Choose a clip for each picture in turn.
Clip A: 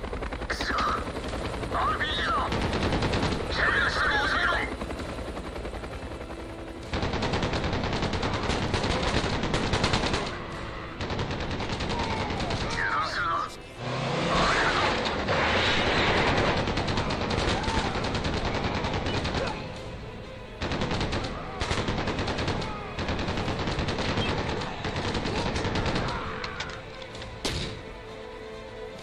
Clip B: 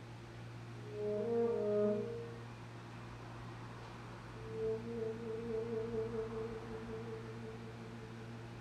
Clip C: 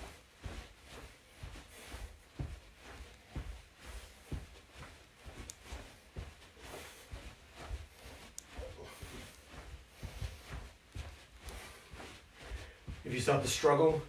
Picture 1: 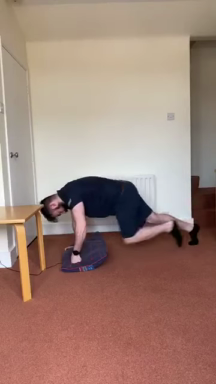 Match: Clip C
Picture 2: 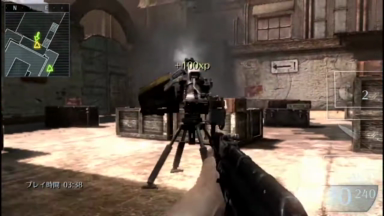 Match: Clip A